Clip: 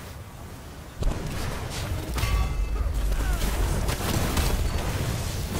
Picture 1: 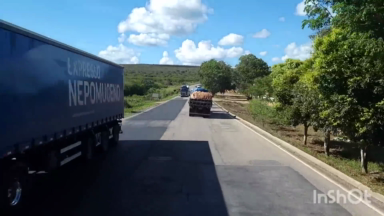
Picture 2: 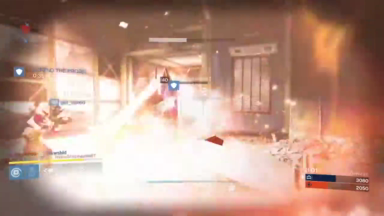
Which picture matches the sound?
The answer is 2